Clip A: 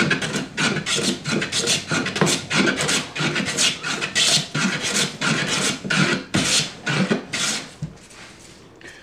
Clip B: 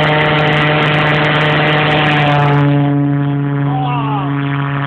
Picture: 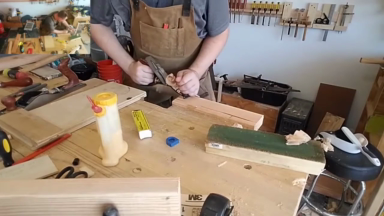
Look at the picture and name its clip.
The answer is A